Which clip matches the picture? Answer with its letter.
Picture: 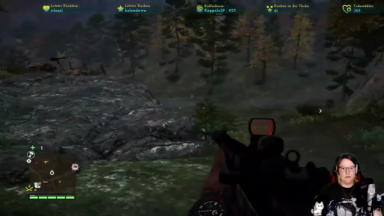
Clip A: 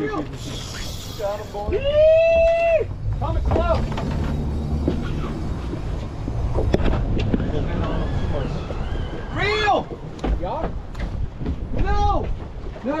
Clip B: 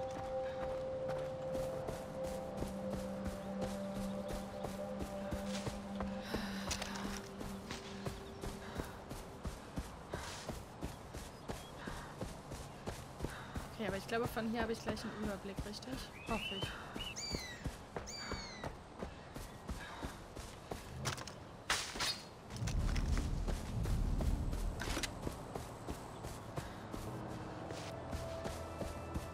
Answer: B